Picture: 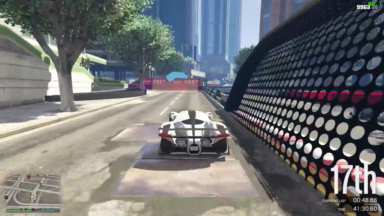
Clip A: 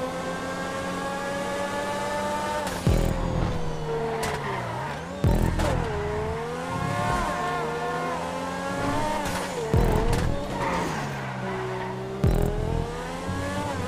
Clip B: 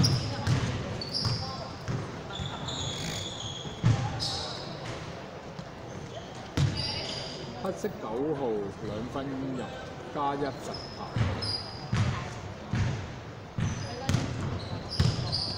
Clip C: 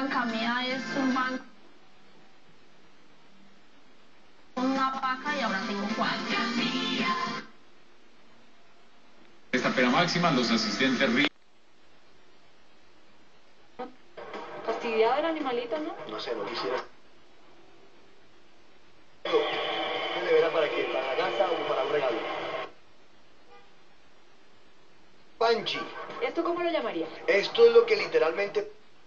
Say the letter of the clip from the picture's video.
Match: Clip A